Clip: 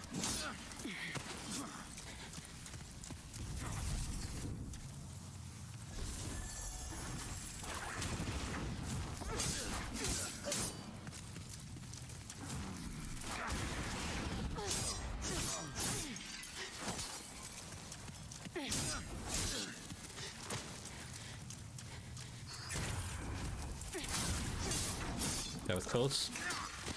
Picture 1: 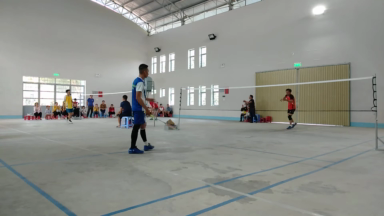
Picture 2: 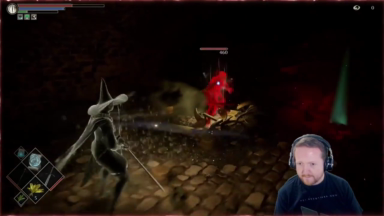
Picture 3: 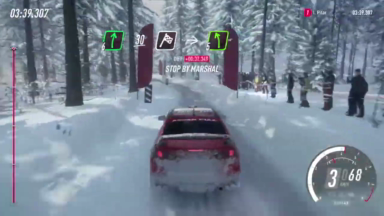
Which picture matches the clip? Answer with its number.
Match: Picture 2